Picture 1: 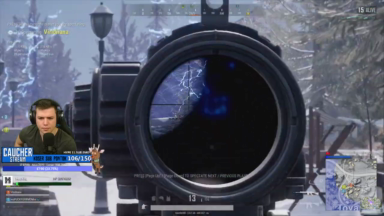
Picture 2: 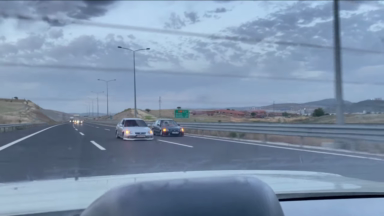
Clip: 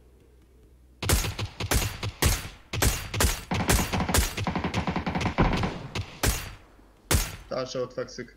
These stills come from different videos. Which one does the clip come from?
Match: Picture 1